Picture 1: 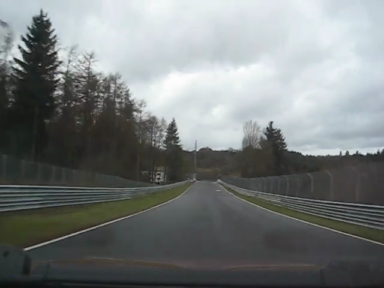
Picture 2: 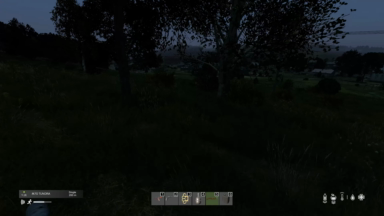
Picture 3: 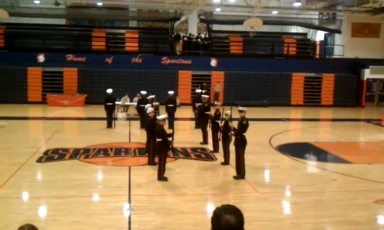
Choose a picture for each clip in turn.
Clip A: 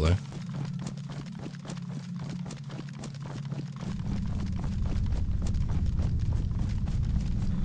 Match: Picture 2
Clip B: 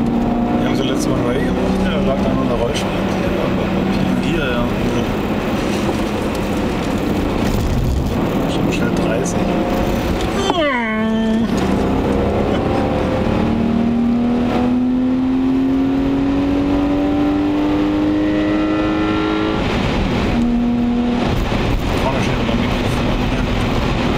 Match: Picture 1